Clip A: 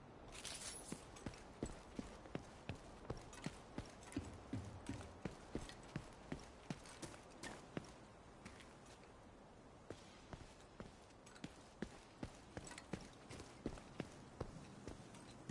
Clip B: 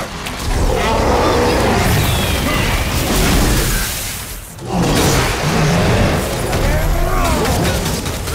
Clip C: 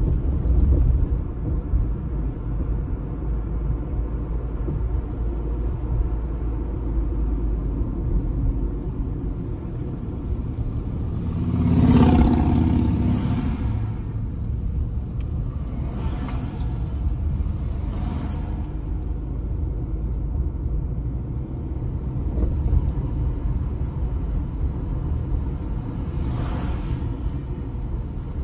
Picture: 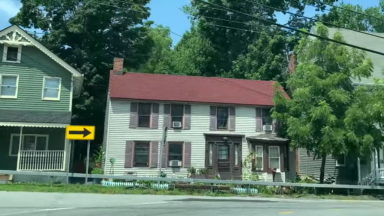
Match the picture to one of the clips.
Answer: C